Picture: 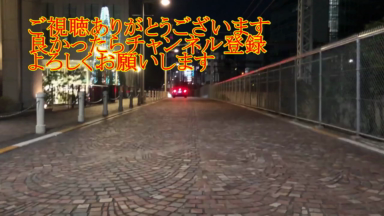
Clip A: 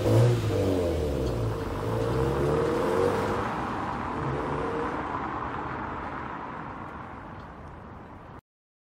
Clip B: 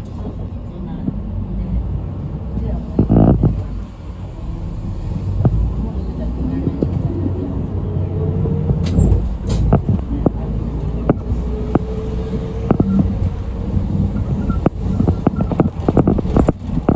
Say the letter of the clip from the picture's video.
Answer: A